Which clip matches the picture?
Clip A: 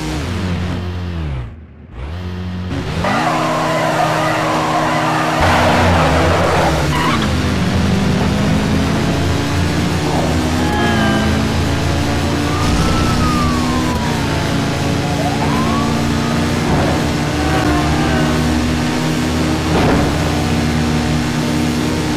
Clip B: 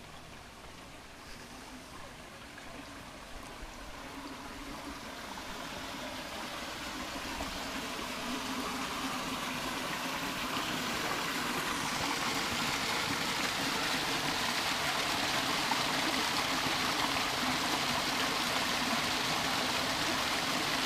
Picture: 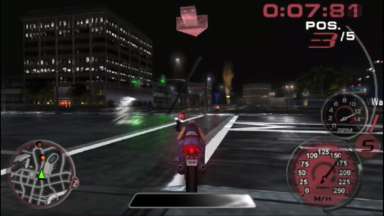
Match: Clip A